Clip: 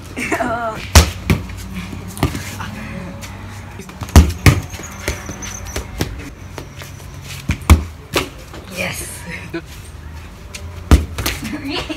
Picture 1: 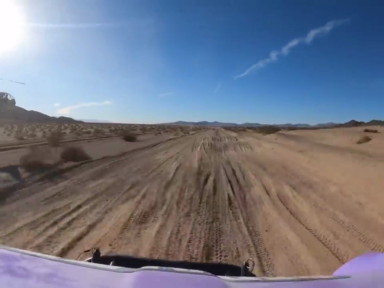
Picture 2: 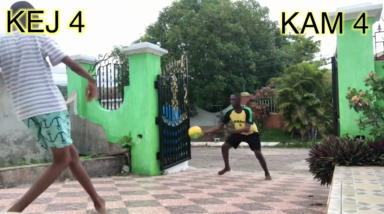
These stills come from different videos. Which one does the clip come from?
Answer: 2